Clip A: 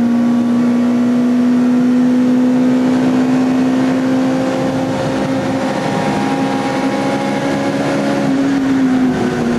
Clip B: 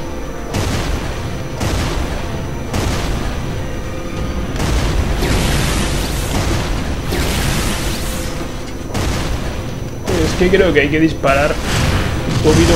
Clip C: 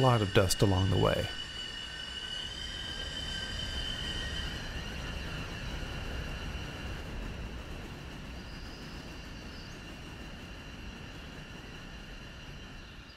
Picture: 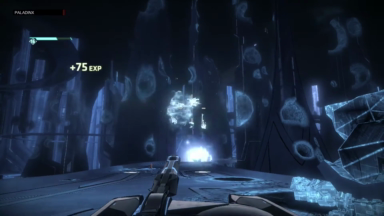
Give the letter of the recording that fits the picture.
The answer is B